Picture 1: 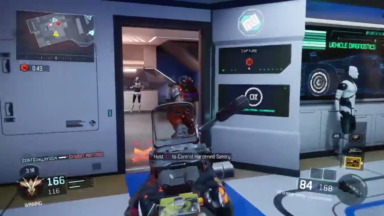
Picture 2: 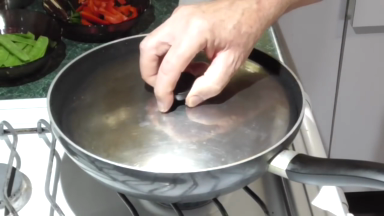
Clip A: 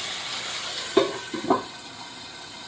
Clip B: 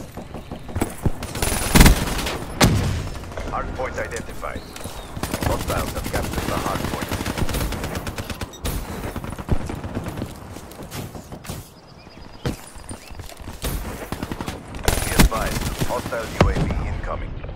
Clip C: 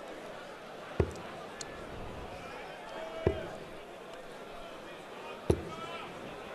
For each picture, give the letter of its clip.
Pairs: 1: B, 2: A